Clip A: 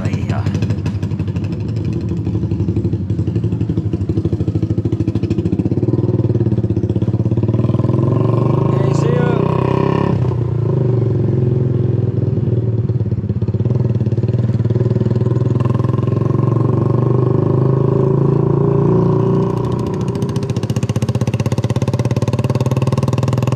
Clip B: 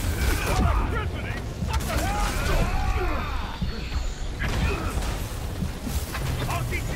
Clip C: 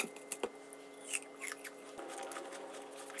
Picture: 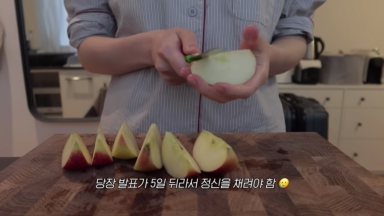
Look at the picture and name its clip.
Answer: C